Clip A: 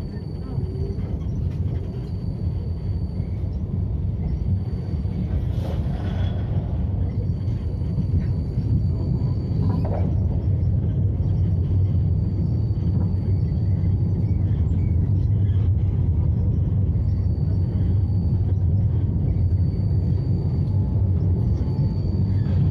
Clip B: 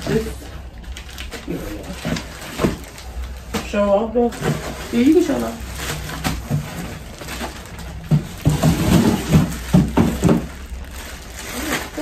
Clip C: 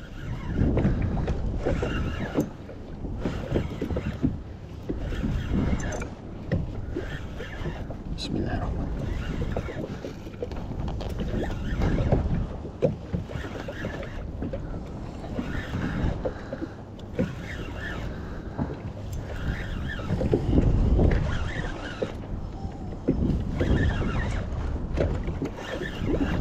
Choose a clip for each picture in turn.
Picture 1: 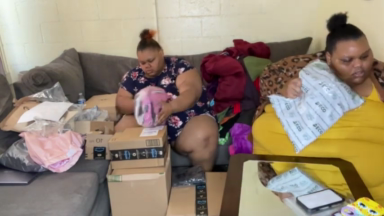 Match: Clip B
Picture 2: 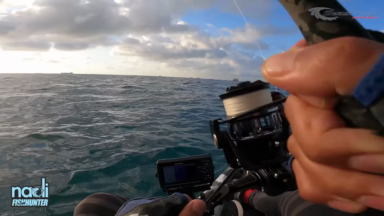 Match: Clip C